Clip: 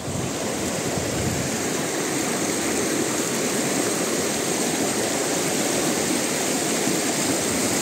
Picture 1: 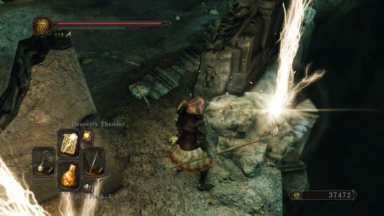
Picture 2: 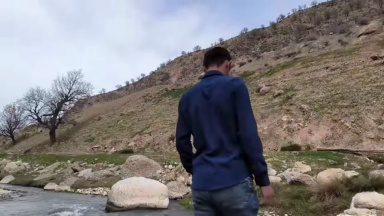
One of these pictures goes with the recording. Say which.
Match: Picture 2